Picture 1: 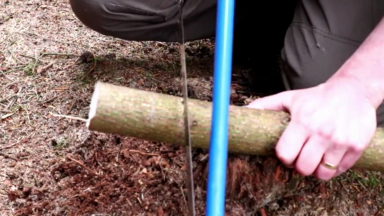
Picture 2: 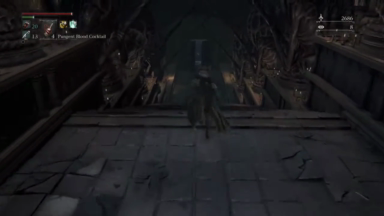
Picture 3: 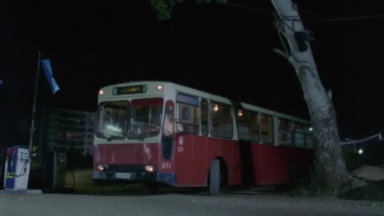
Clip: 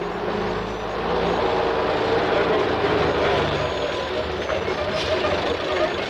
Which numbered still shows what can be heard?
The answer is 3